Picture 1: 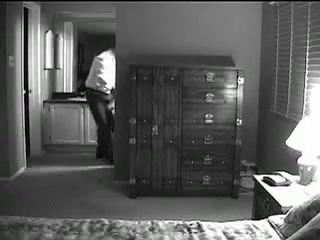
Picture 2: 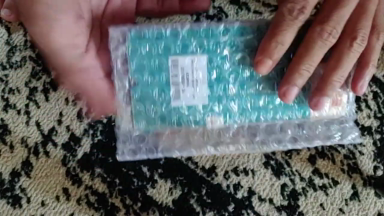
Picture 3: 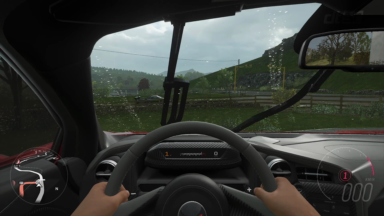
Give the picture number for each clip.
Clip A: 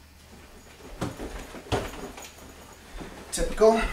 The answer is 1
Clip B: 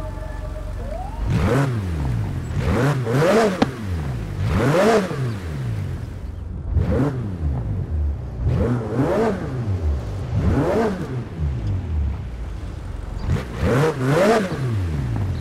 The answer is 3